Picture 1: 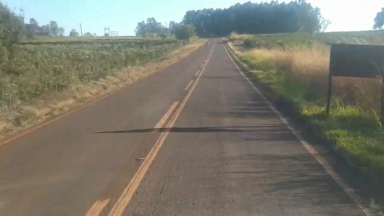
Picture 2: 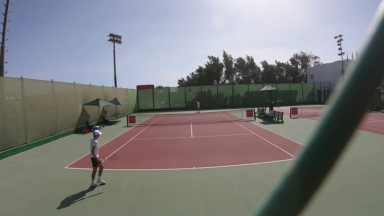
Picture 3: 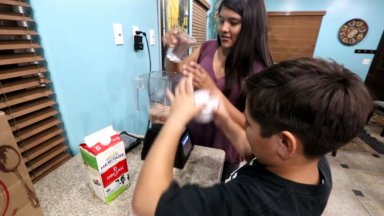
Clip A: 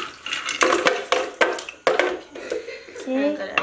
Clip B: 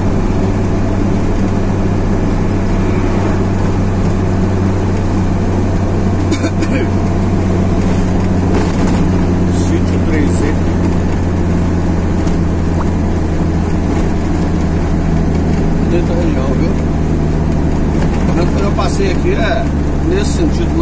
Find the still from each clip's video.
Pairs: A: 3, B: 1